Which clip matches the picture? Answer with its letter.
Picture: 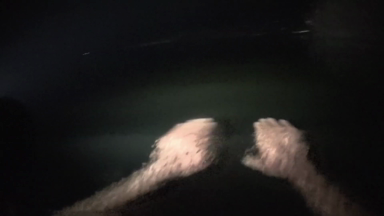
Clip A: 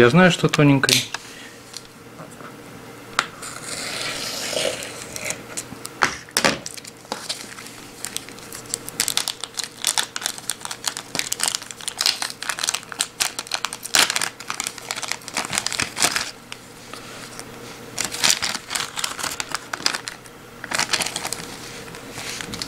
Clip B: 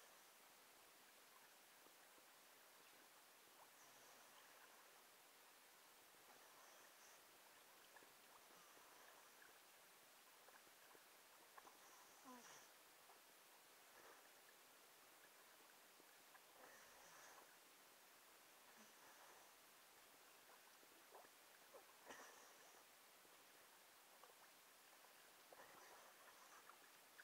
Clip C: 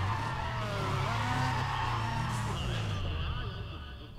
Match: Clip B